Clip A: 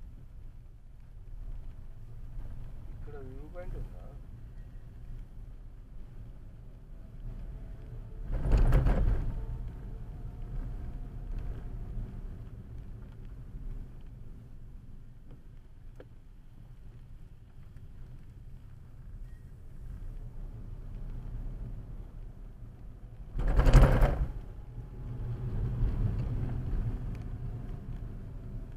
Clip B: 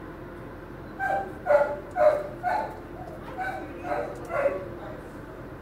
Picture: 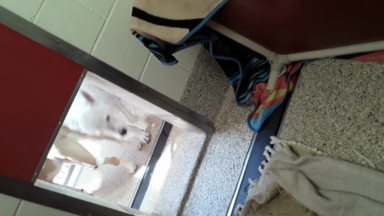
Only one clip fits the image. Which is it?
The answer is B